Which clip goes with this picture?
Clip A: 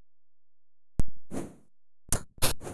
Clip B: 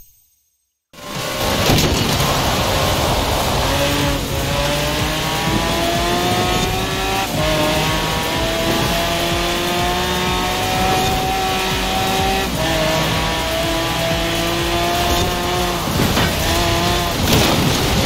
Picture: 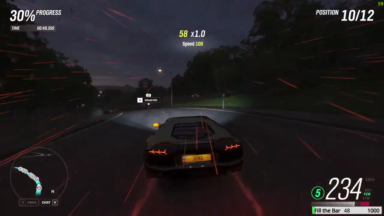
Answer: B